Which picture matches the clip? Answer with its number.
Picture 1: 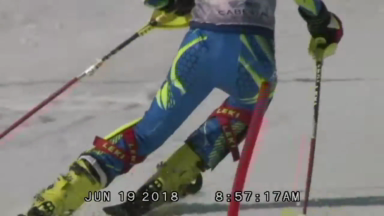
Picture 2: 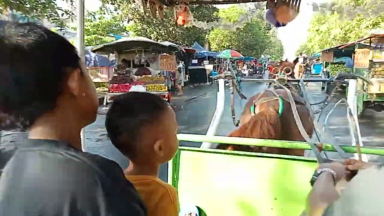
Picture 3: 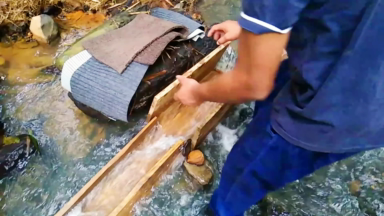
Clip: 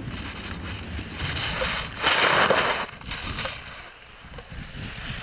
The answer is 1